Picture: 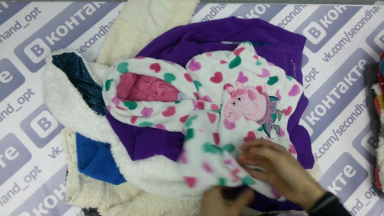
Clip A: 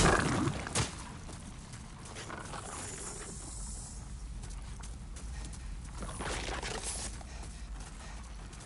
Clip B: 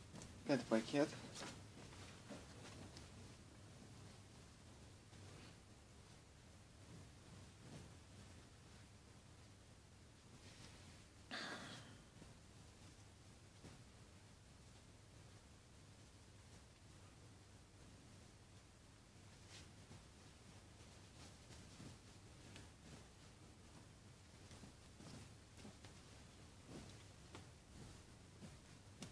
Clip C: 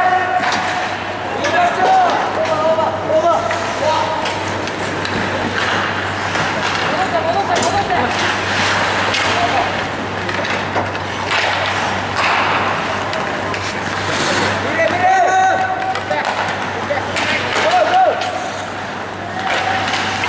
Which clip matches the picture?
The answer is B